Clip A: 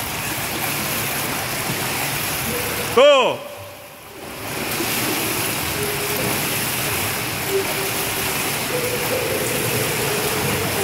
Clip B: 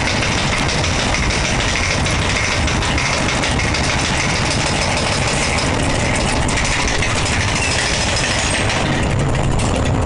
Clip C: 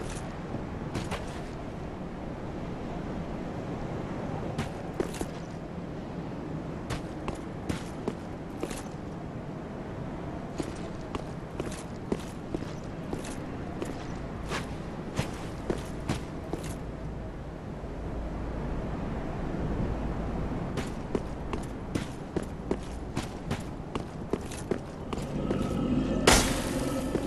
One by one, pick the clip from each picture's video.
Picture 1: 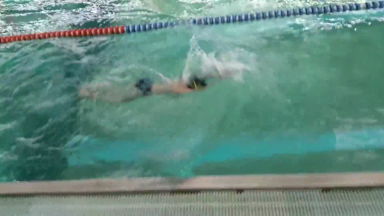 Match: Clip A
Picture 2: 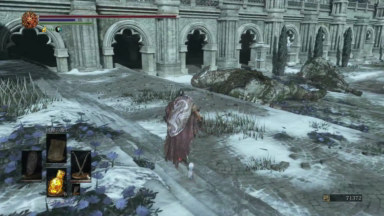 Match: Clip C